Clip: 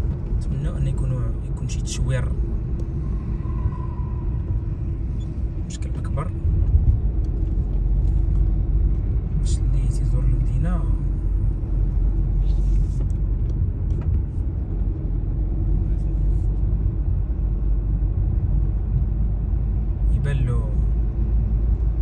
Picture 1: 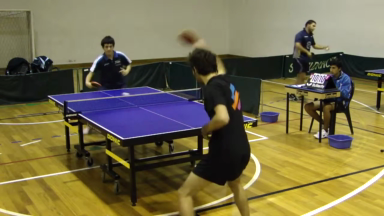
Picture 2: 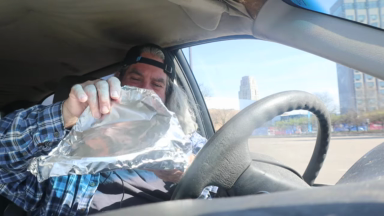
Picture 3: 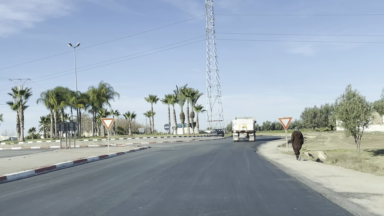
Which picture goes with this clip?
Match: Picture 3